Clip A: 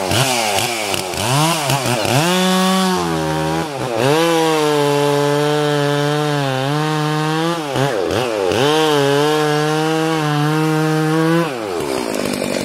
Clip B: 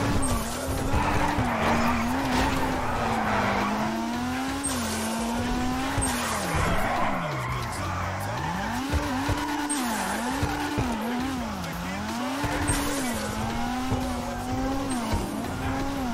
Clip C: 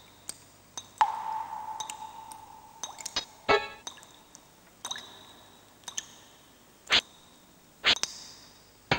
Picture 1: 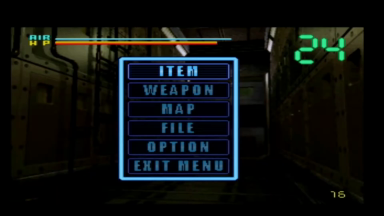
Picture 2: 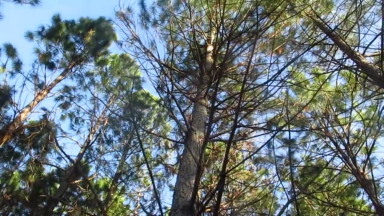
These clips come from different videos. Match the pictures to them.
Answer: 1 C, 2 A